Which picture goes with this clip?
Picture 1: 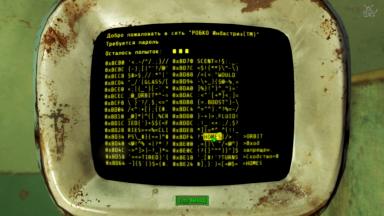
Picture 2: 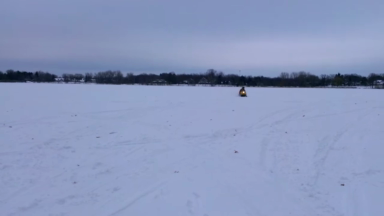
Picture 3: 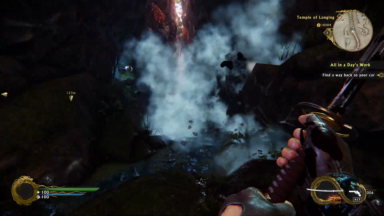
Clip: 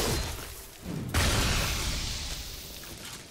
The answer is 3